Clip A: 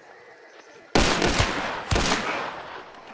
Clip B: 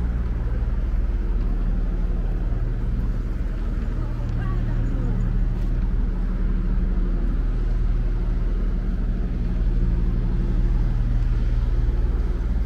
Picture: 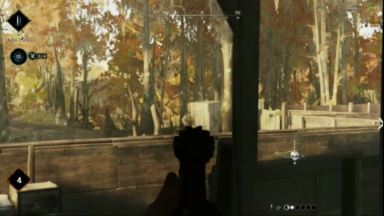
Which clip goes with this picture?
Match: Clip A